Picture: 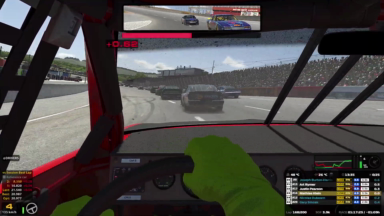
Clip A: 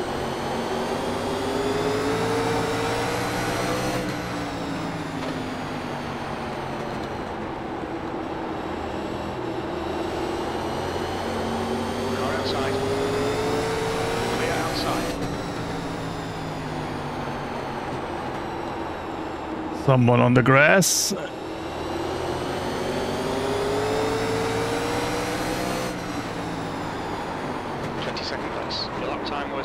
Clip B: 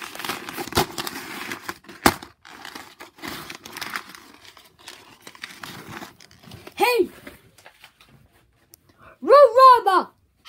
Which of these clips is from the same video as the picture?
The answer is A